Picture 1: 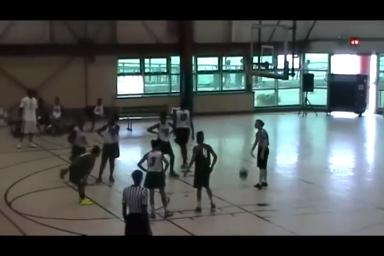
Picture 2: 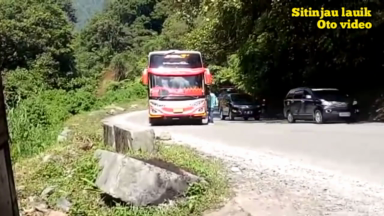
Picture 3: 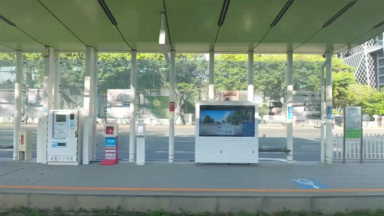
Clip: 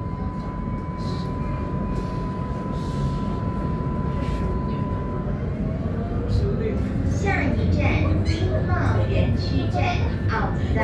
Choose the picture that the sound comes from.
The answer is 3